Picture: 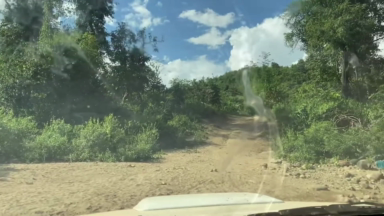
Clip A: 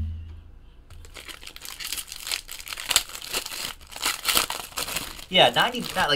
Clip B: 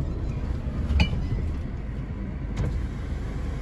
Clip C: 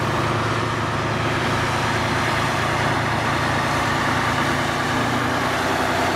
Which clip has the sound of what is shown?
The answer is B